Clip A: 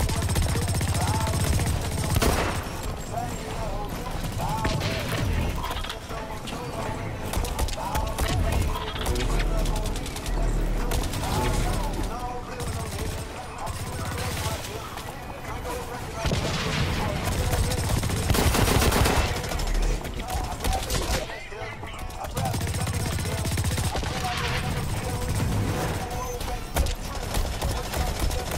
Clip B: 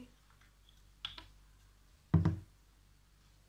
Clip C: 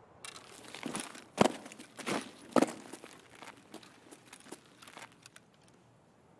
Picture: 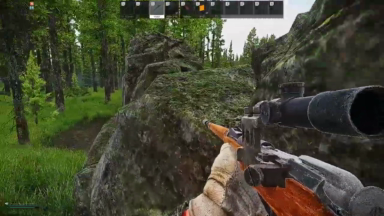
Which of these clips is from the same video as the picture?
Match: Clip C